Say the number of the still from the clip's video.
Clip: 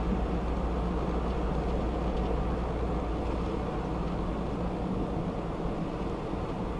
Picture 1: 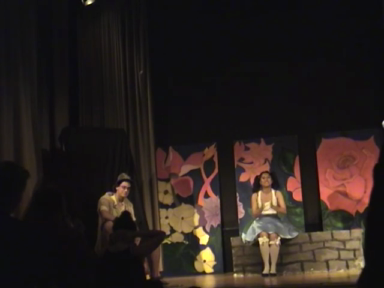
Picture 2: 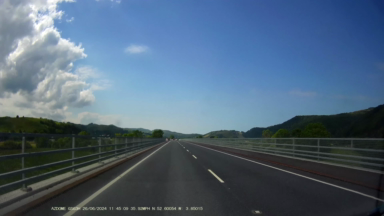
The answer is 2